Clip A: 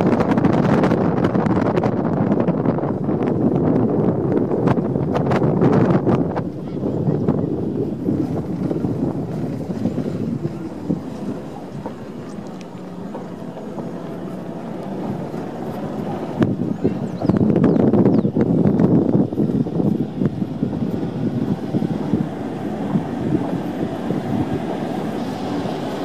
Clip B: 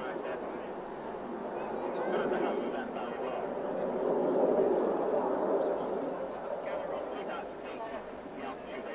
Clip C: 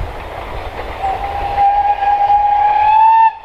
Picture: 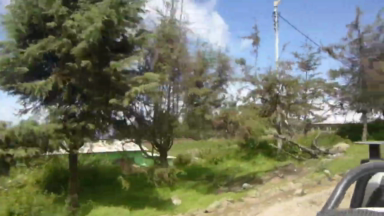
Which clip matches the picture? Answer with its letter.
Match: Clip A